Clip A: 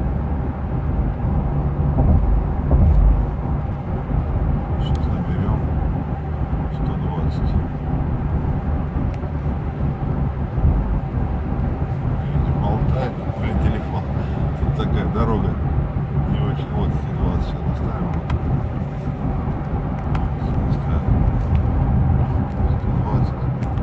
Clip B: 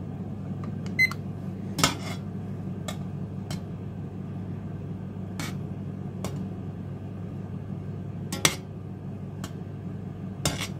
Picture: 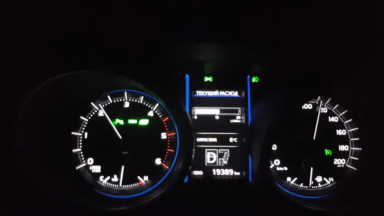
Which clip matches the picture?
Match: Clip A